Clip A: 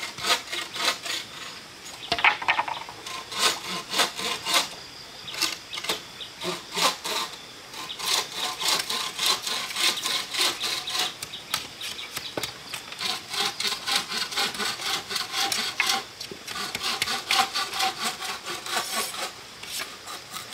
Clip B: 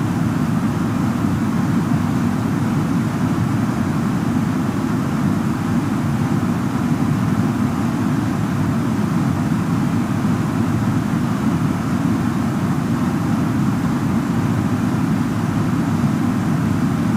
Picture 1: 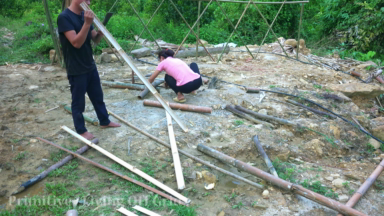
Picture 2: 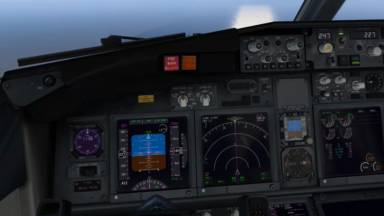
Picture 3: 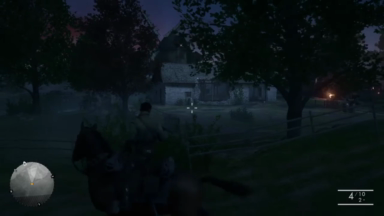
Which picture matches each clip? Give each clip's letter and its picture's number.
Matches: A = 1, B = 2